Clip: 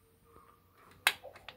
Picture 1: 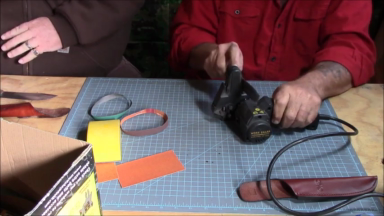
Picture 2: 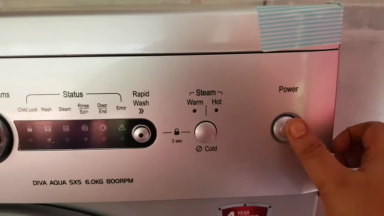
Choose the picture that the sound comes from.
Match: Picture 2